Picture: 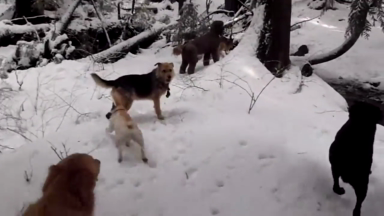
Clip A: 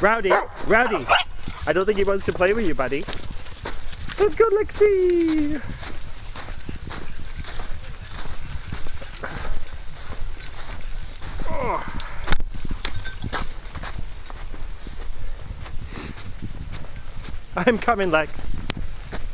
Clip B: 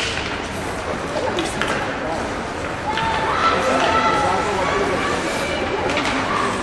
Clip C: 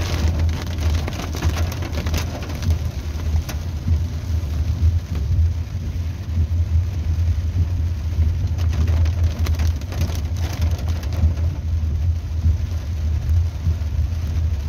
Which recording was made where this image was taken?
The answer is A